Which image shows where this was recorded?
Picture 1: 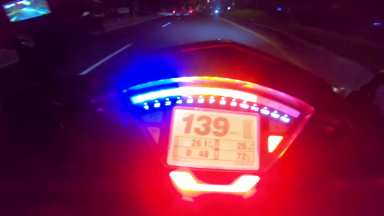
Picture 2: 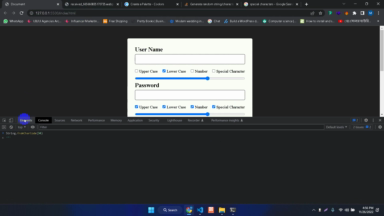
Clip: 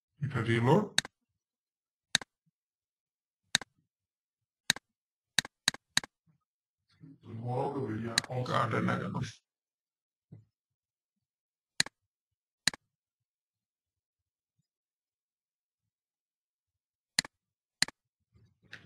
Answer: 2